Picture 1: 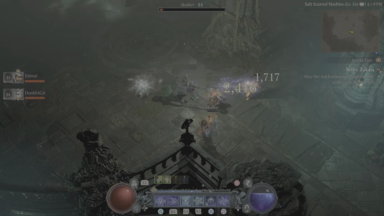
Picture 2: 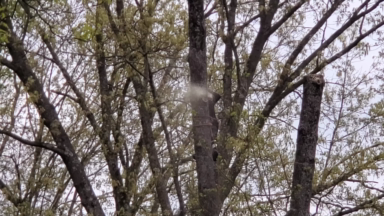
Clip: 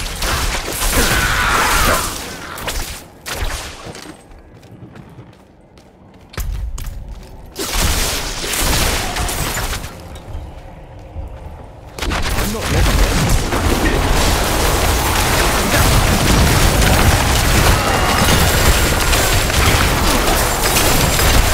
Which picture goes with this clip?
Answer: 1